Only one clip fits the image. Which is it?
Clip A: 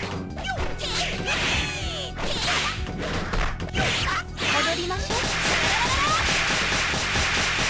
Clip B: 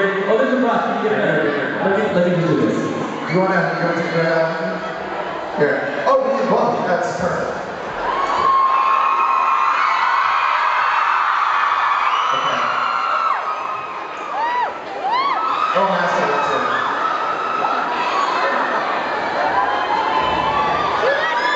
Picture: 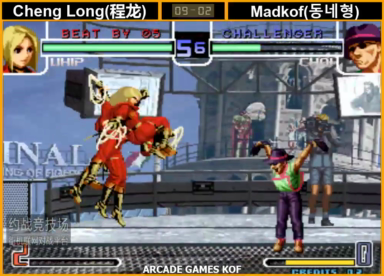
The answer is A